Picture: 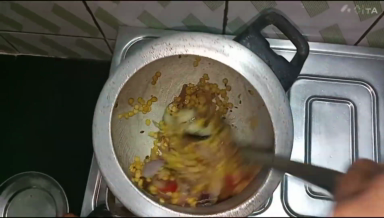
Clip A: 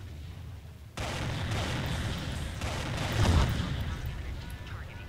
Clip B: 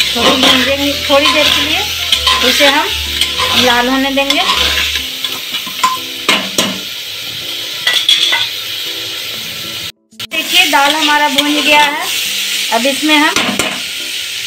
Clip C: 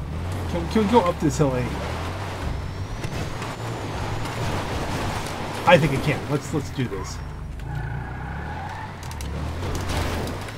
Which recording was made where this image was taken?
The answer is B